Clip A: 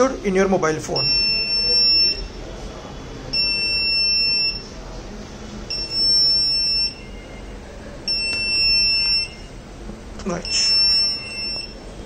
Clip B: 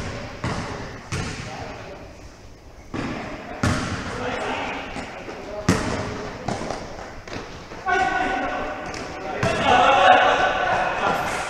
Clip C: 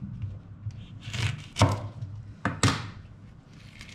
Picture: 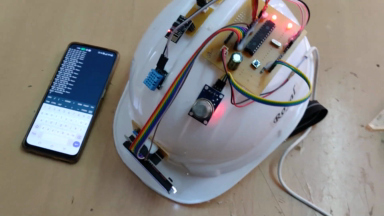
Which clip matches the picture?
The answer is A